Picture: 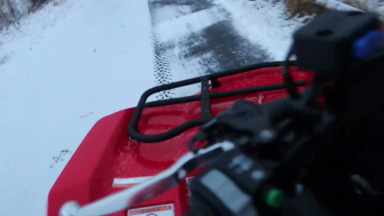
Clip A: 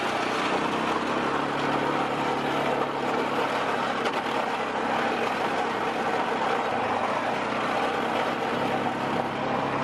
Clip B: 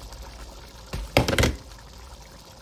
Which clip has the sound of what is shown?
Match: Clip A